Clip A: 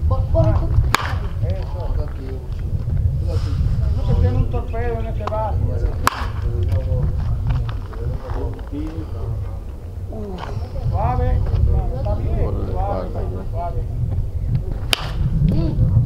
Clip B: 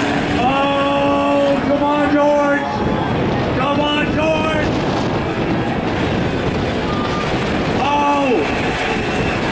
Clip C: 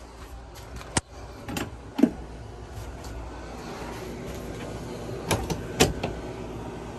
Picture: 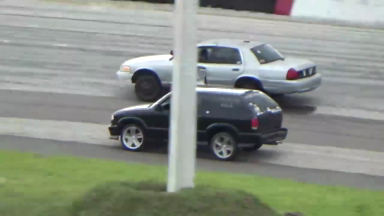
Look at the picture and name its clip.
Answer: B